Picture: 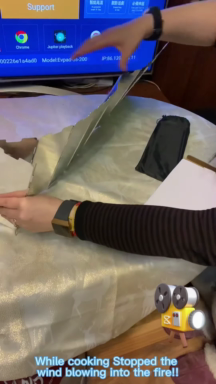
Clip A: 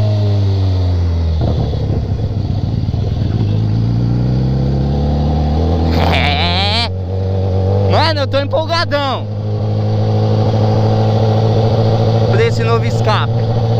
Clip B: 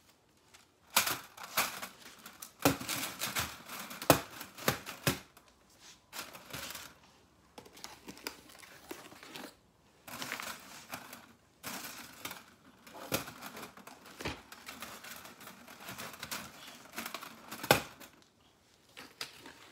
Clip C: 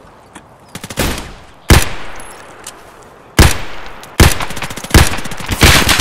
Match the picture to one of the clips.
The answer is B